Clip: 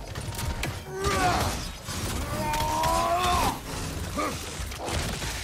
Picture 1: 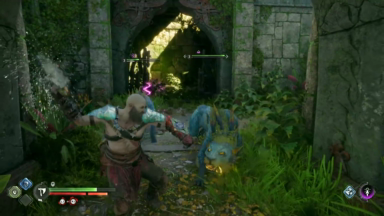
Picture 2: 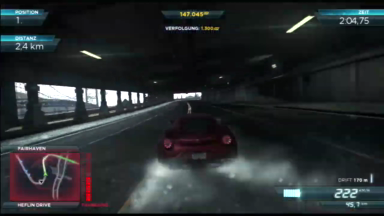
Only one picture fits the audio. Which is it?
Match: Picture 1